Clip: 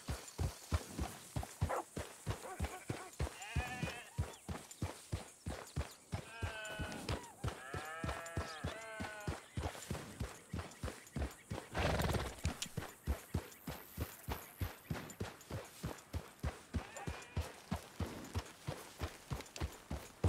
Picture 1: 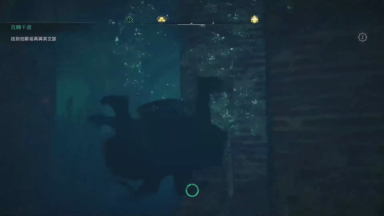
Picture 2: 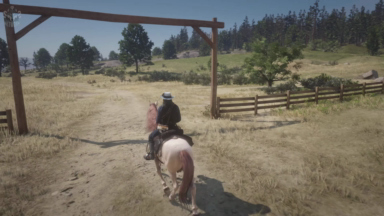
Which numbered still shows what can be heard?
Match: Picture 2